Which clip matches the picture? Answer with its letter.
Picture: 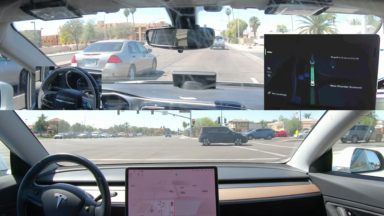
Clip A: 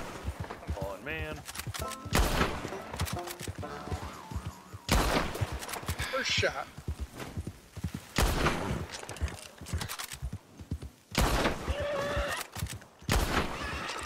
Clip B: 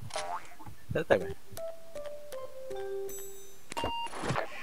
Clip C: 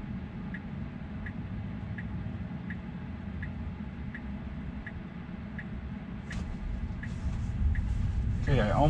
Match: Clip C